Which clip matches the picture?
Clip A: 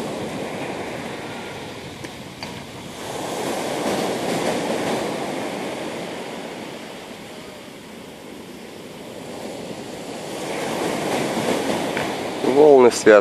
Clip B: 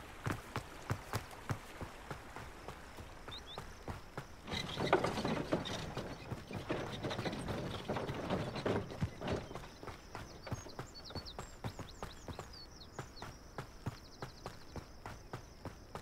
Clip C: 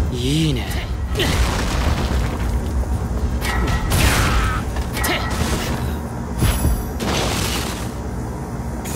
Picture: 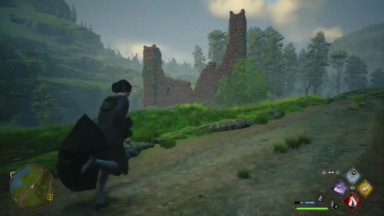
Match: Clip B